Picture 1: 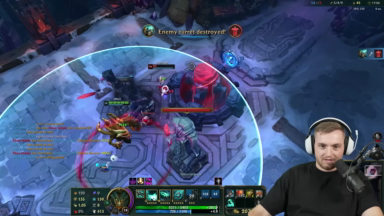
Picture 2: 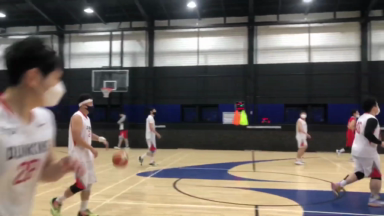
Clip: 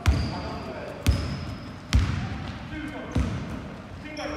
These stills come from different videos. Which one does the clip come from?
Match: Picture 2